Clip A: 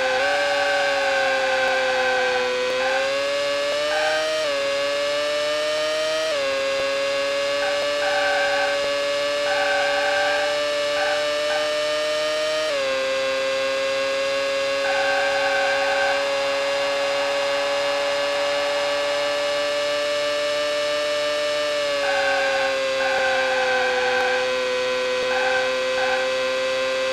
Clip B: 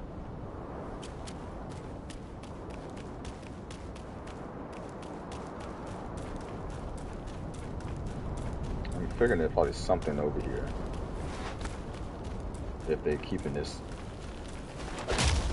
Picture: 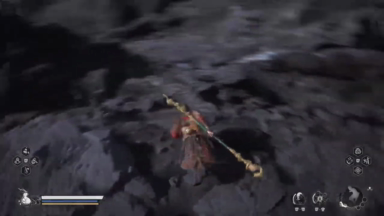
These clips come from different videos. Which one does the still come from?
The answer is B